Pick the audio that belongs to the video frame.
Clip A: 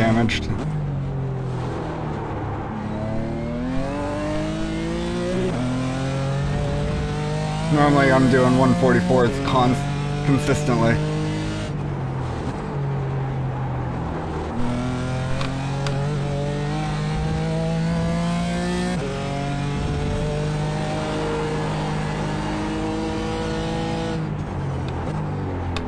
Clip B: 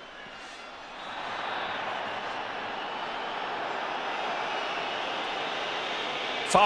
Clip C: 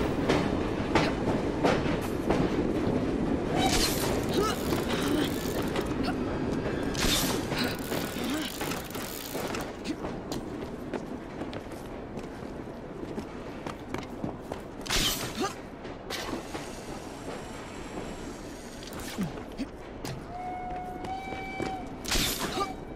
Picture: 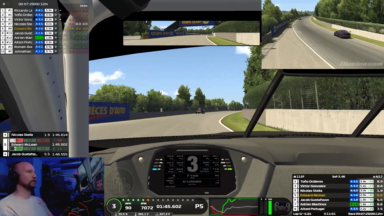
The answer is A